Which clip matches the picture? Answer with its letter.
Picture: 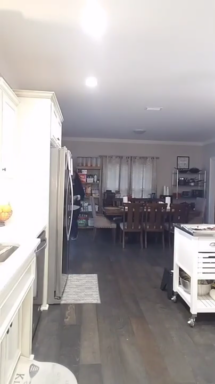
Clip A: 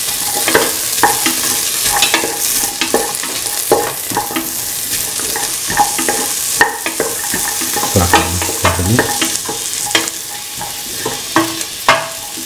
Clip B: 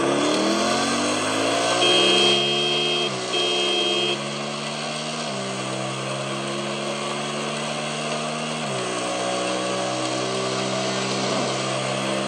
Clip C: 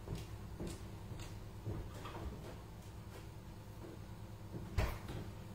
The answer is C